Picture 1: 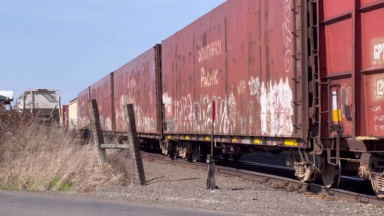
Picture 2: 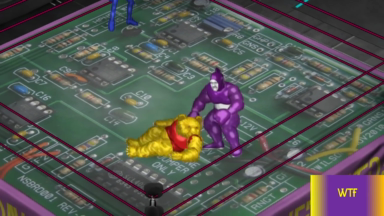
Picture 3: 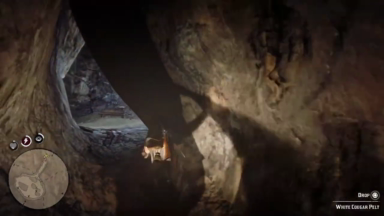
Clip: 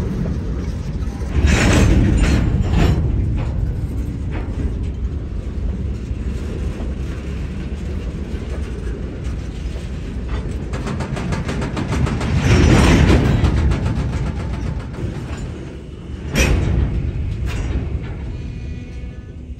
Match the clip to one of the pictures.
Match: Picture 1